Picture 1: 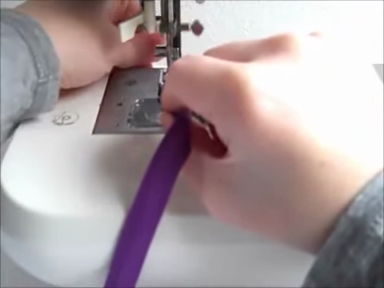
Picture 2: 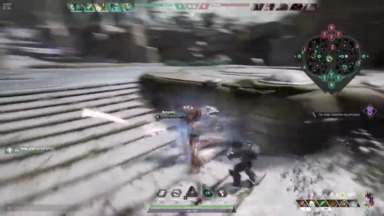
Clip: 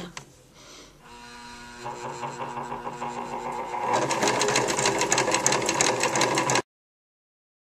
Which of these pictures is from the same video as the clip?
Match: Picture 1